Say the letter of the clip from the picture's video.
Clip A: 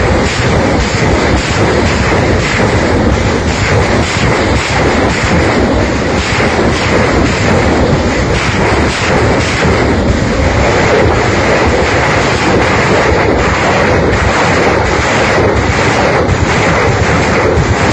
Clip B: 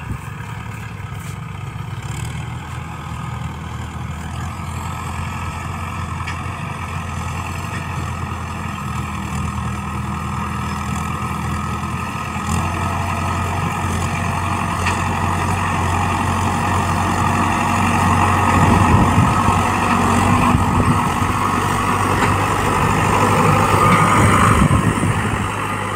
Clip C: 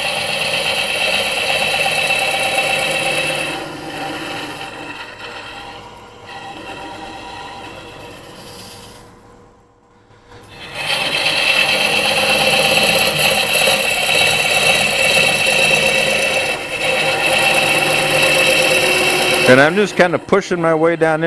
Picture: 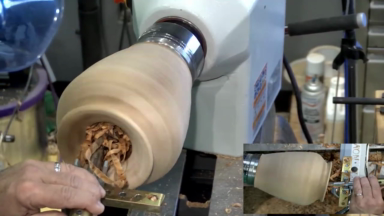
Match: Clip C